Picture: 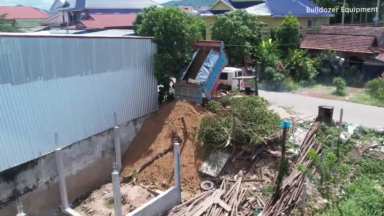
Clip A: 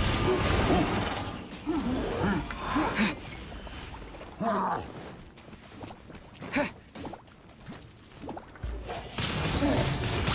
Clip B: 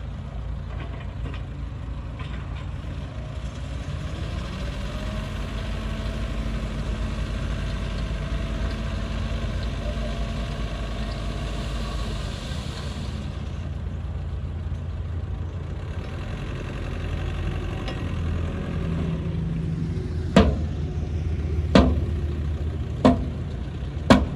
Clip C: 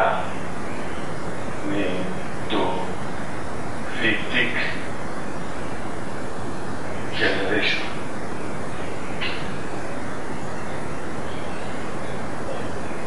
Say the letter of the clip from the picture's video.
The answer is B